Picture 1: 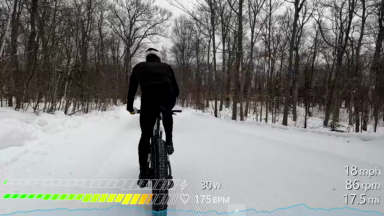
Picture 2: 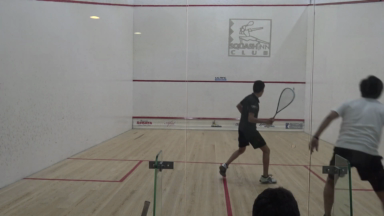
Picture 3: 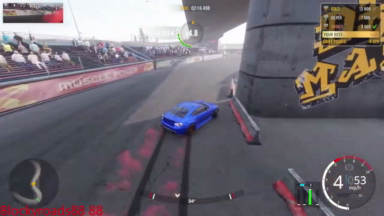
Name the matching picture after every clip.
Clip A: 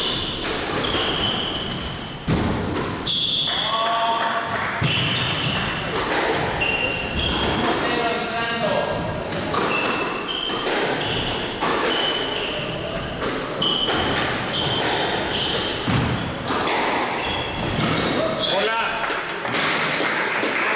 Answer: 2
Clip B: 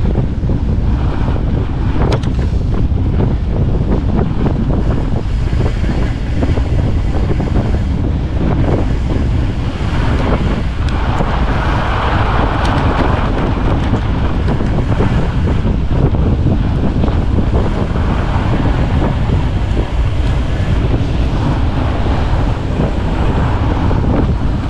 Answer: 1